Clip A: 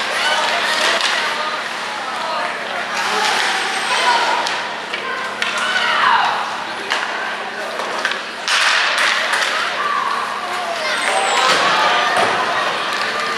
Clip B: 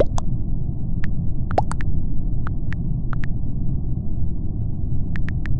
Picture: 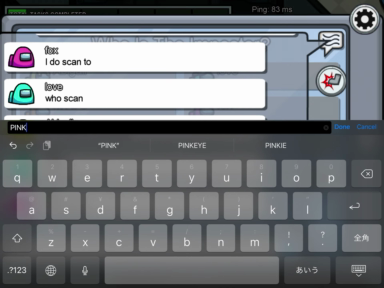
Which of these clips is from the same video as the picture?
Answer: B